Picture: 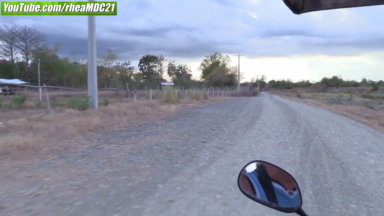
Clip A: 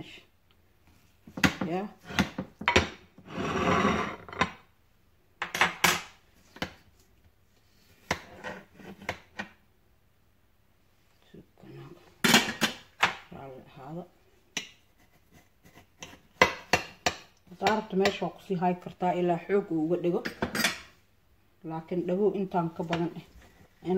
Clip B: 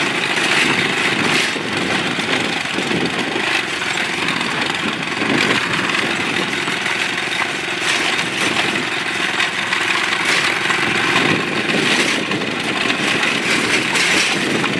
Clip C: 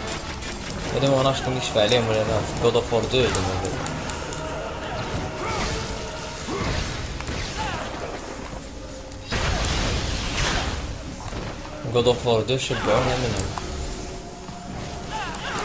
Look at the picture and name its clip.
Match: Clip B